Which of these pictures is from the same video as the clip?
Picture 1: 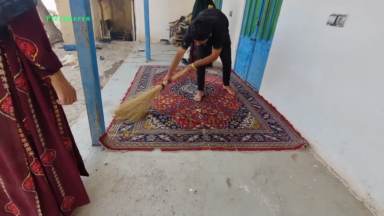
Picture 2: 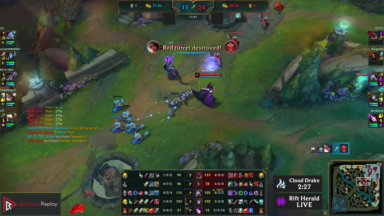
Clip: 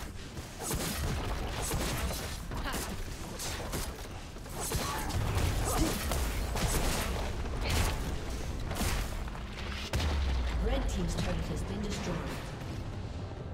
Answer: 2